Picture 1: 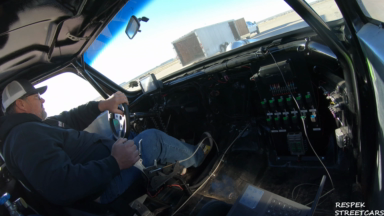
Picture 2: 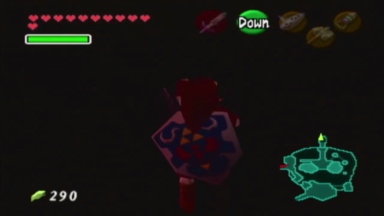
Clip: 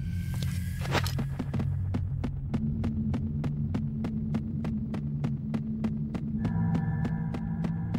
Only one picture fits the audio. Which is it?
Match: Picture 2